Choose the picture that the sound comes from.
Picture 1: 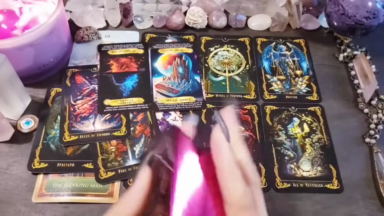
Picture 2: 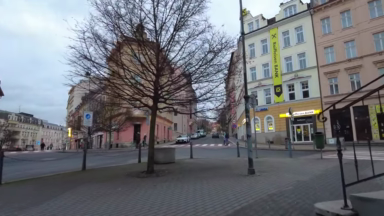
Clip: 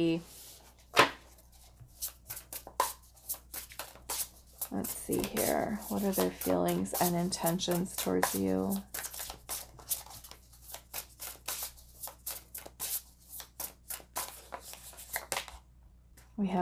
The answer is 1